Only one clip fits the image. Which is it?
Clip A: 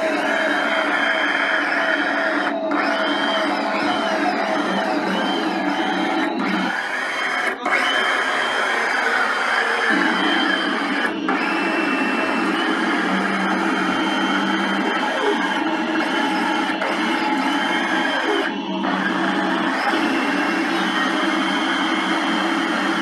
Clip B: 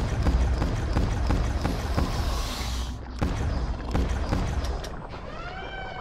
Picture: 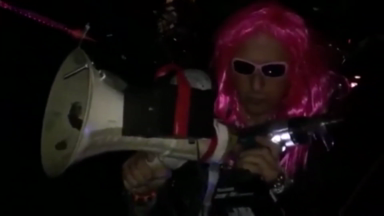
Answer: A